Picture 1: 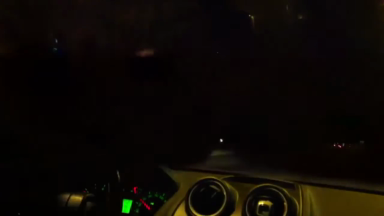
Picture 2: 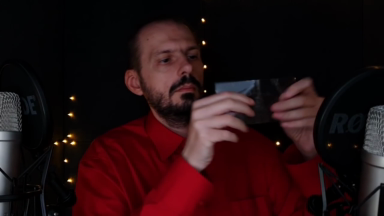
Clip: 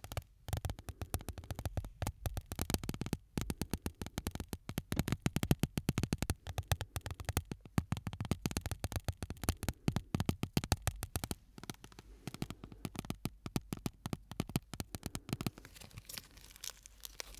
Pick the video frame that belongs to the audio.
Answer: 2